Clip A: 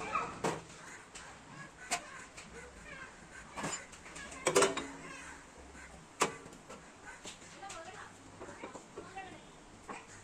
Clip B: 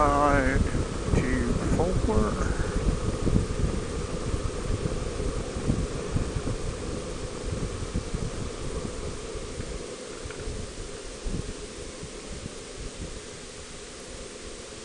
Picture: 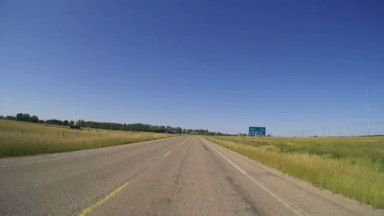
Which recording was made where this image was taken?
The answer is B